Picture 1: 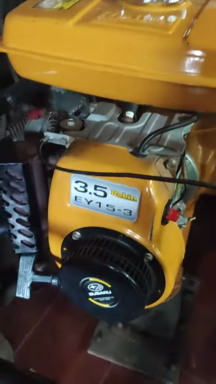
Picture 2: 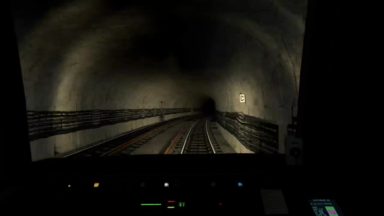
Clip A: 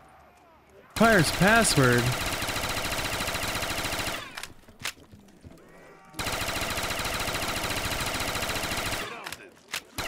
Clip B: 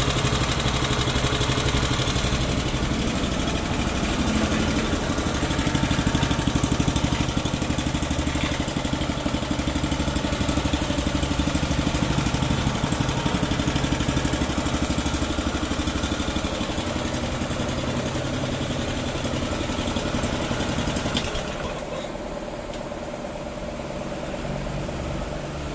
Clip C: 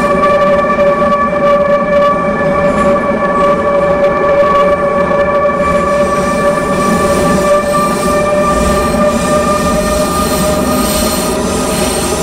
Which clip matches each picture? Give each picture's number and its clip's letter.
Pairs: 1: B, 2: C